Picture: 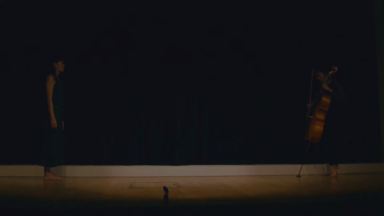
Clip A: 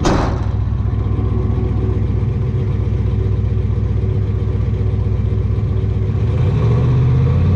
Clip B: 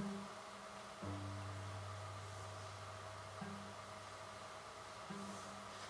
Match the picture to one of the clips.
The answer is B